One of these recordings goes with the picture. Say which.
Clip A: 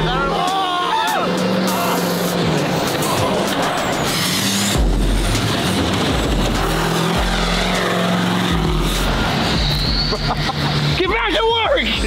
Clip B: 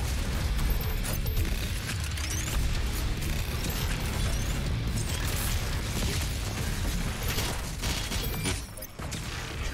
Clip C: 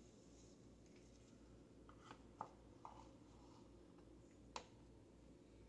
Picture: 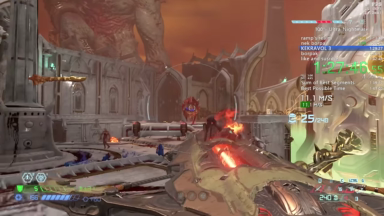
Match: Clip B